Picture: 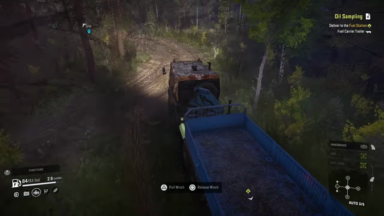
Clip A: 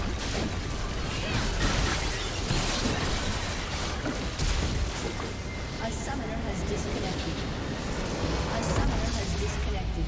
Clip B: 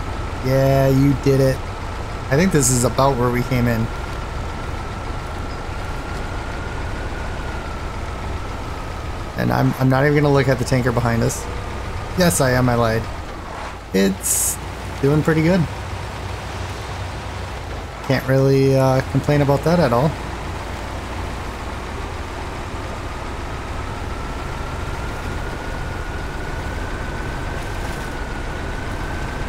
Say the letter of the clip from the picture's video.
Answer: B